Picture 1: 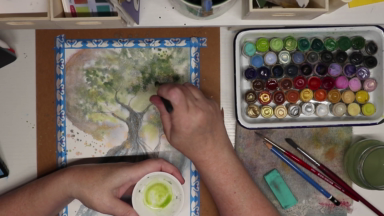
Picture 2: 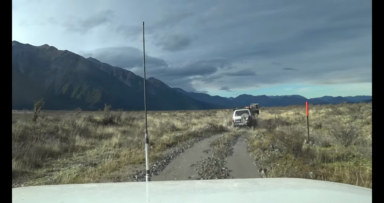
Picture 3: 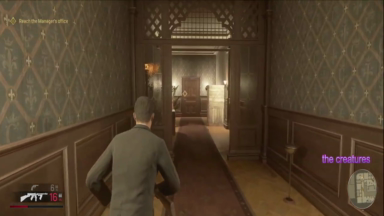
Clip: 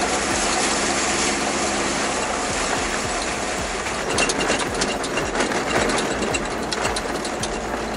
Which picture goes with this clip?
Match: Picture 2